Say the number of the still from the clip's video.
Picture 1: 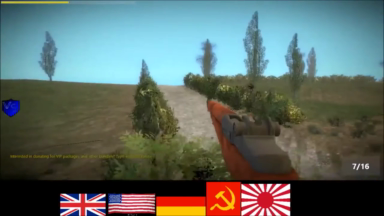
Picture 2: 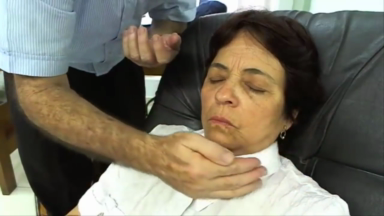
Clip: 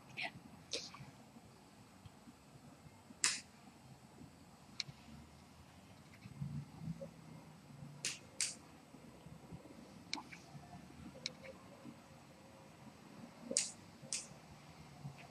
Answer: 2